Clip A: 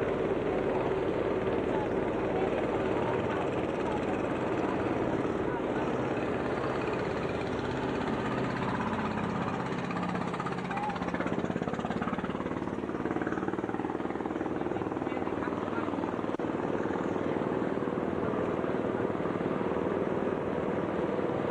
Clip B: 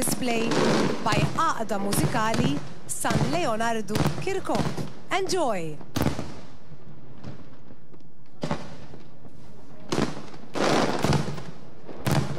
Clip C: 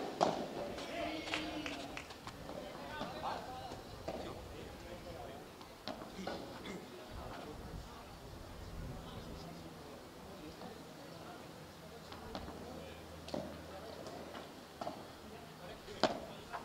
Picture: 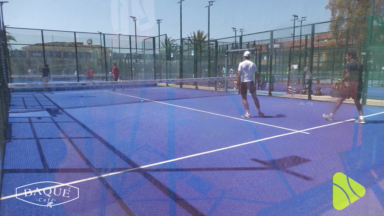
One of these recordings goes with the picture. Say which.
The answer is C